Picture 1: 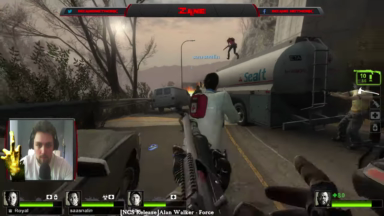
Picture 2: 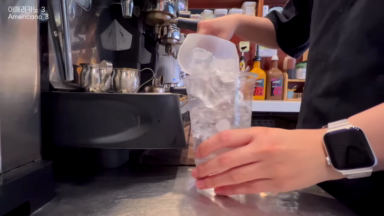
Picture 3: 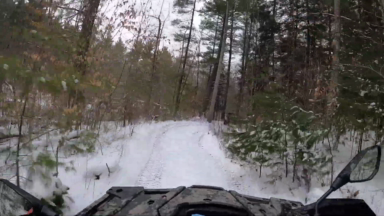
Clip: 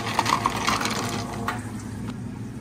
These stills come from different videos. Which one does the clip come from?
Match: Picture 2